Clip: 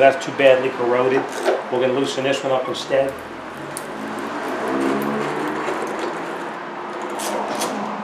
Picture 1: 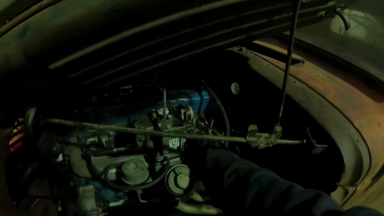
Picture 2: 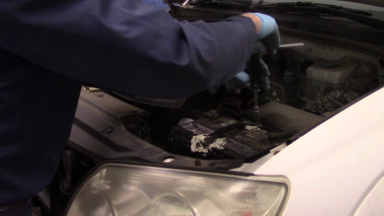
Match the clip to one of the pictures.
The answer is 2